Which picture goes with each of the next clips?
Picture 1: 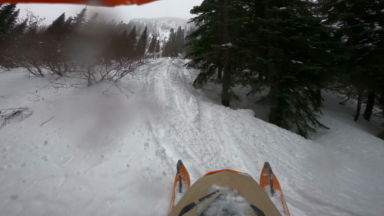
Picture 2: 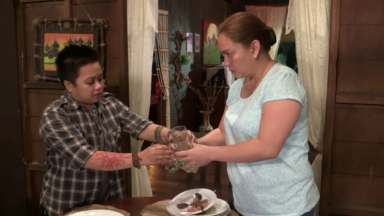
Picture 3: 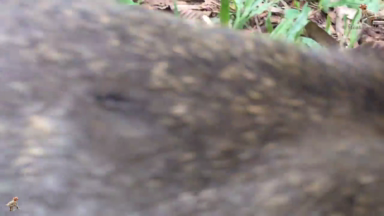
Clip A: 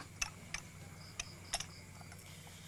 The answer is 2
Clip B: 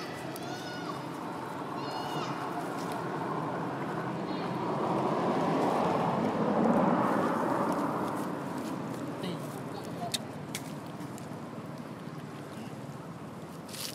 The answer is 3